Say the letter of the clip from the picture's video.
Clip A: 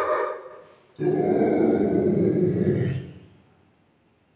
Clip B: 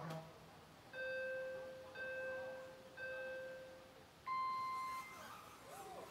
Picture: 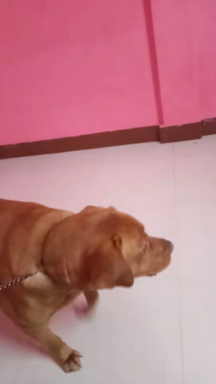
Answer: A